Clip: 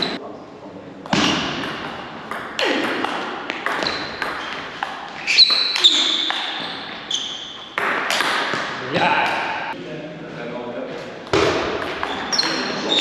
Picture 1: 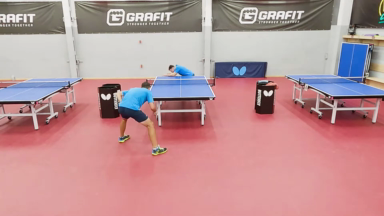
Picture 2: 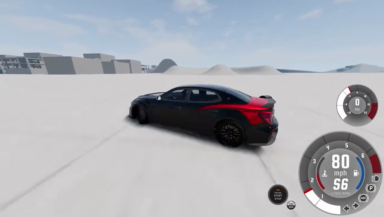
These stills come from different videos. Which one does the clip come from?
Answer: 1